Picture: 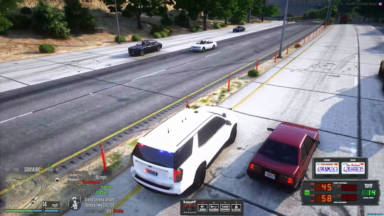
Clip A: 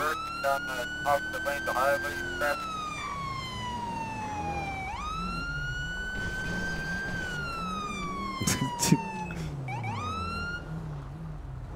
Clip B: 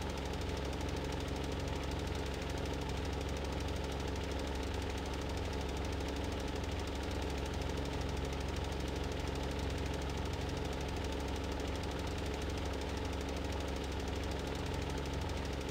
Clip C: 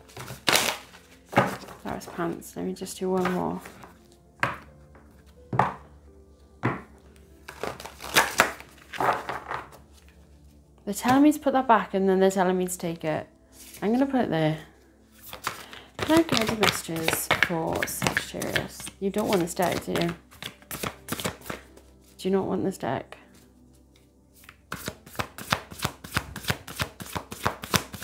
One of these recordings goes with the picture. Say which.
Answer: A